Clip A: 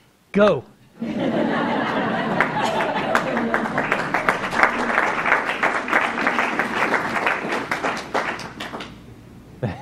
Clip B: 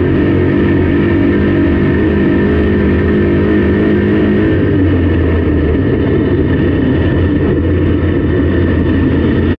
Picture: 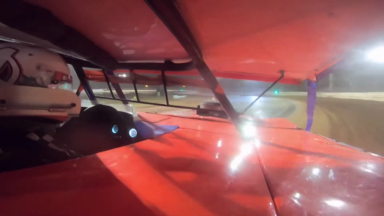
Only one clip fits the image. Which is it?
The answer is B